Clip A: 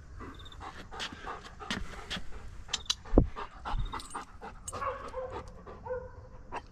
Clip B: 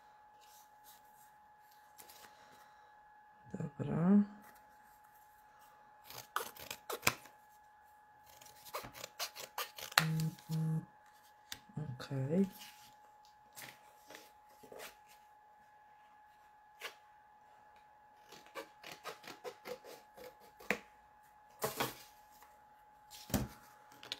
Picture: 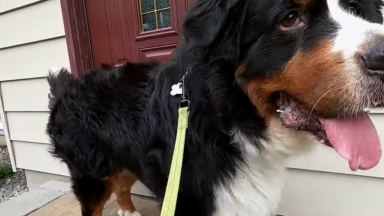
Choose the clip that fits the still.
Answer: A